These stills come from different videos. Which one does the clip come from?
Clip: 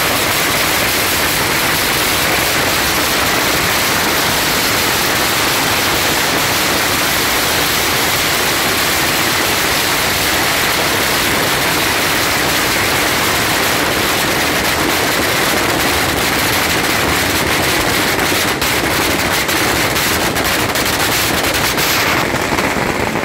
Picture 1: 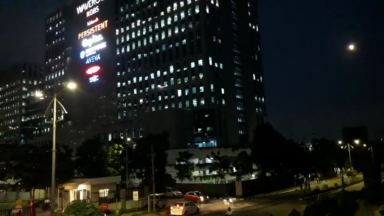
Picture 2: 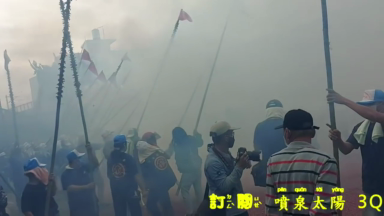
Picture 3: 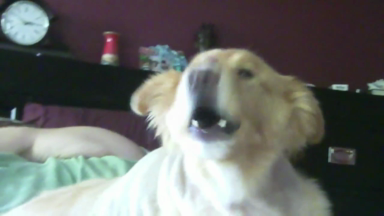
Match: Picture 2